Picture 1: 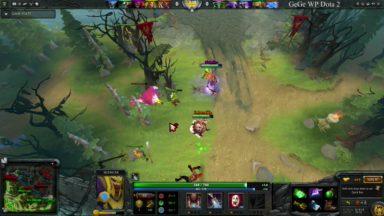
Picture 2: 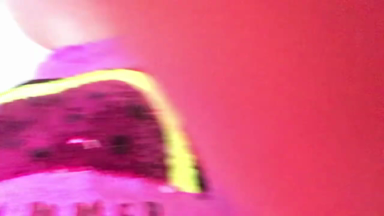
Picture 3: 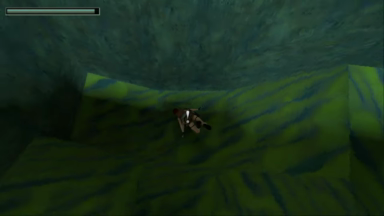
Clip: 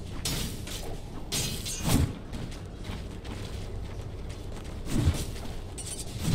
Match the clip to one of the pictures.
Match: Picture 1